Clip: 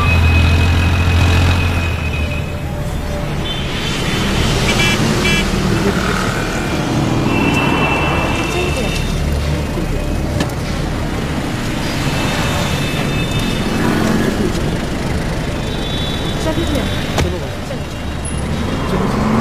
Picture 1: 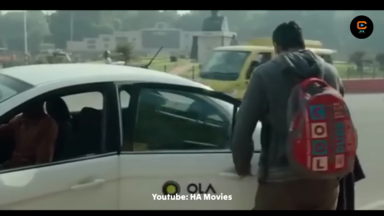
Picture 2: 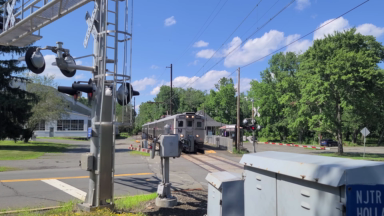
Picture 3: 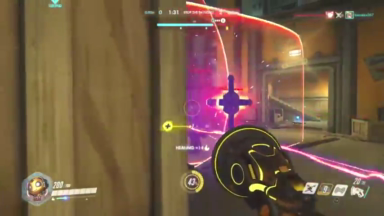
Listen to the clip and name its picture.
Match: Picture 1